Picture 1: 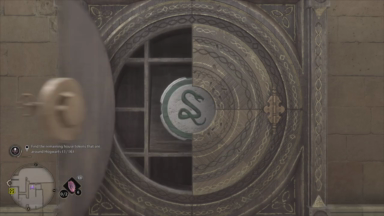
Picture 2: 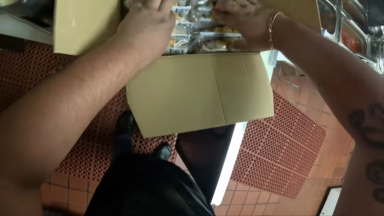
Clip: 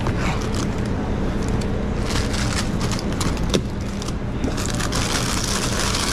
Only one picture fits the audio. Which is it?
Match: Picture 2